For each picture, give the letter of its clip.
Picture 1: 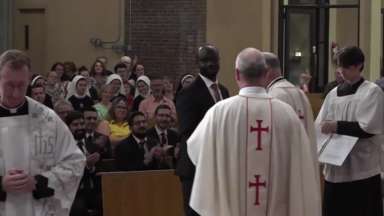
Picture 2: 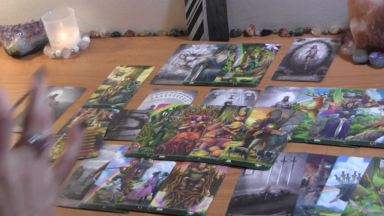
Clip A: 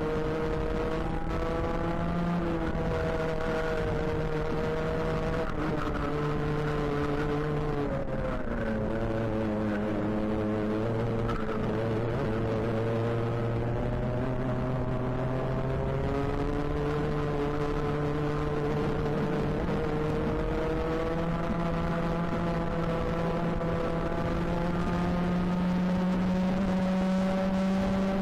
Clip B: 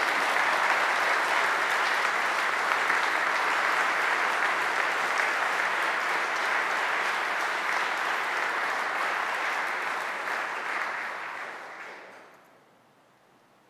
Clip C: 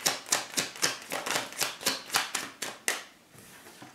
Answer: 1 B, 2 C